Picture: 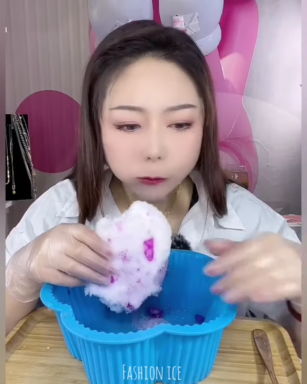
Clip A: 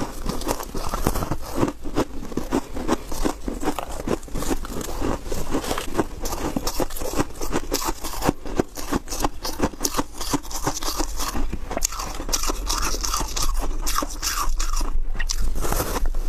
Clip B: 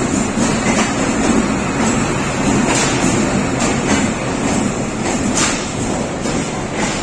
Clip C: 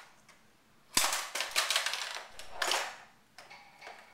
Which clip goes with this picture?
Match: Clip A